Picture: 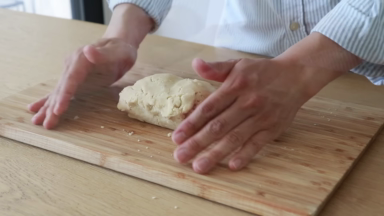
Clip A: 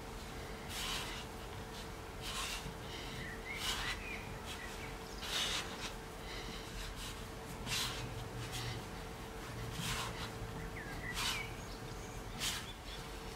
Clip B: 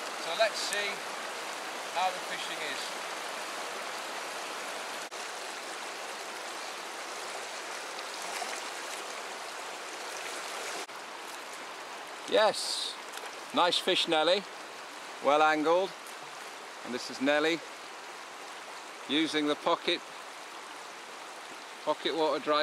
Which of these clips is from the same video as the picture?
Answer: A